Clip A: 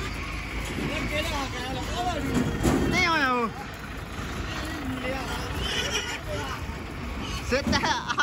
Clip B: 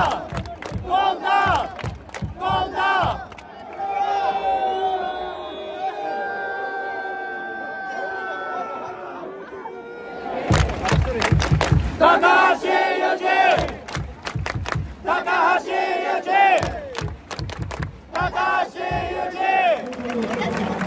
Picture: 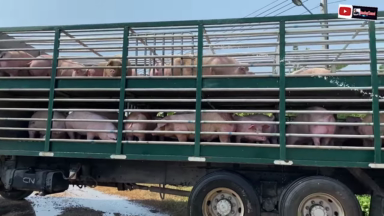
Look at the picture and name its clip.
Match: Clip A